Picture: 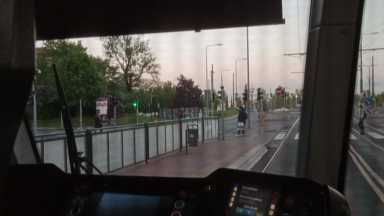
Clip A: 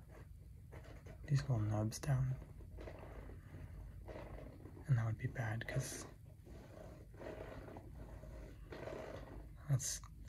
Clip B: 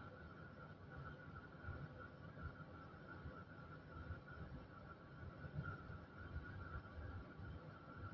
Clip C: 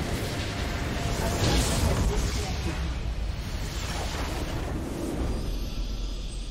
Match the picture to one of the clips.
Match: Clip B